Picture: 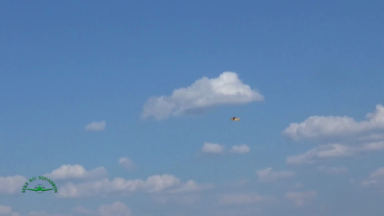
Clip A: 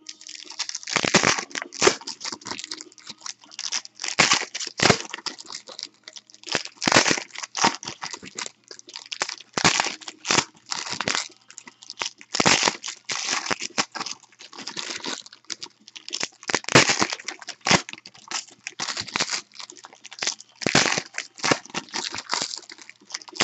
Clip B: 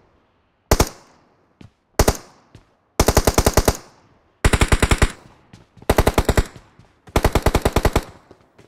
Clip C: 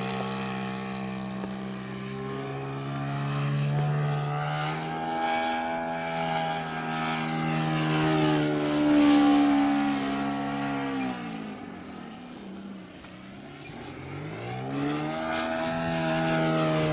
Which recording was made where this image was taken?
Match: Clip C